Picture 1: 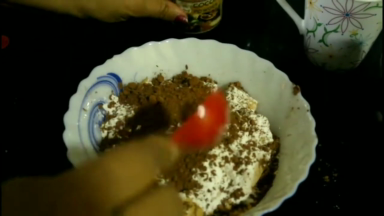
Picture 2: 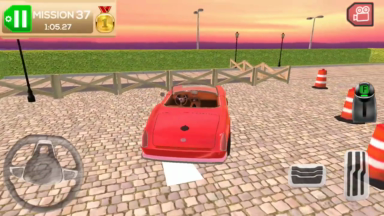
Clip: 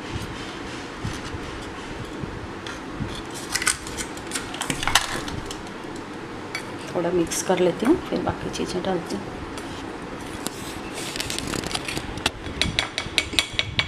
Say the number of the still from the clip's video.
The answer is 1